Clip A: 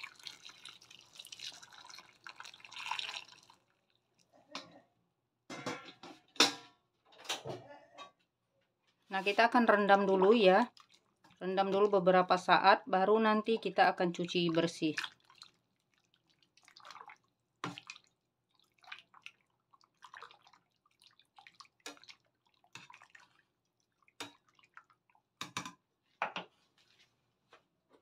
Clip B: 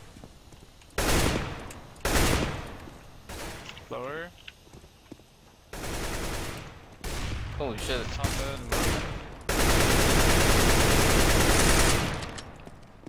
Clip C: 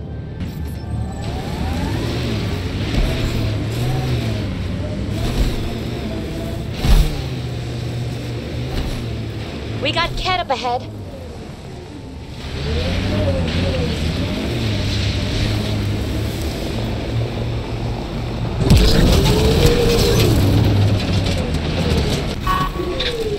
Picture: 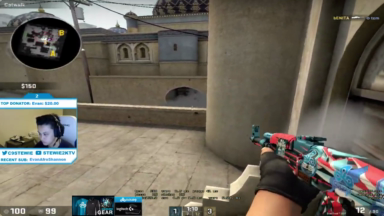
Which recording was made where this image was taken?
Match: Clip B